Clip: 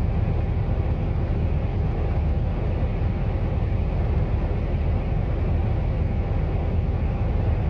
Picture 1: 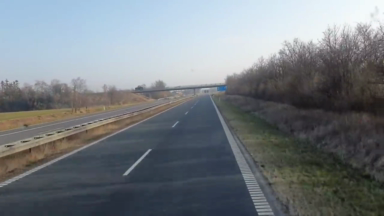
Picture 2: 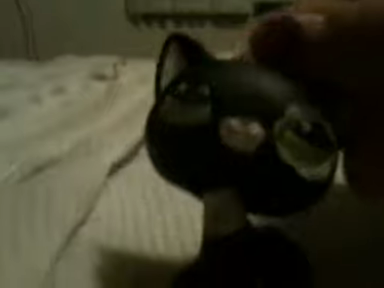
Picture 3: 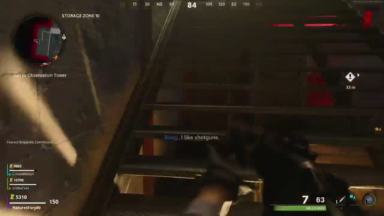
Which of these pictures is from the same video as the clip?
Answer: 1